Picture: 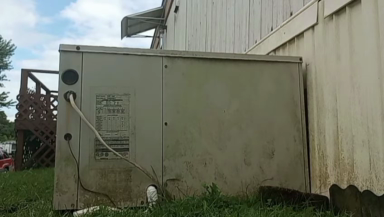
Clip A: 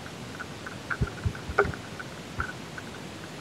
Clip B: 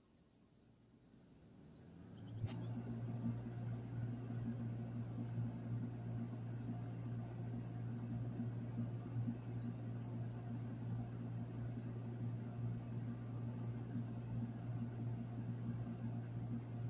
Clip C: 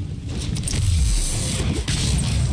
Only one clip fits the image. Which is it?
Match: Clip B